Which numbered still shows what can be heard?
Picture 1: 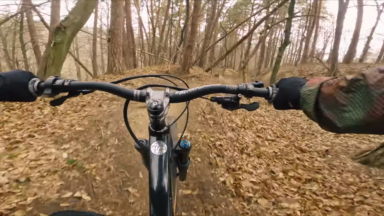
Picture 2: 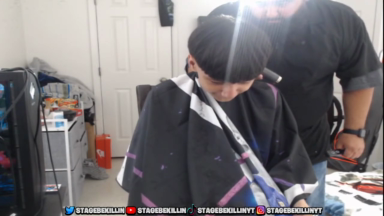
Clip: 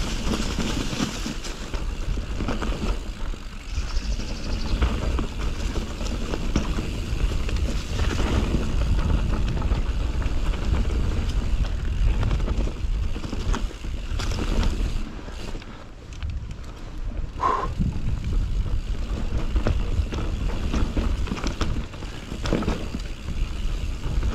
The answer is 1